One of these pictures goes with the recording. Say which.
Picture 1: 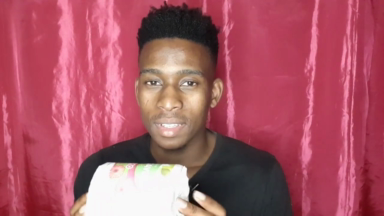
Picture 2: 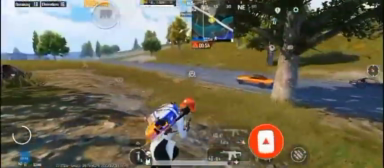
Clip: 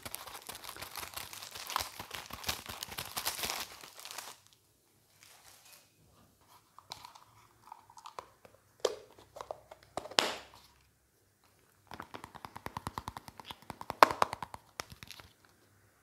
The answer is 1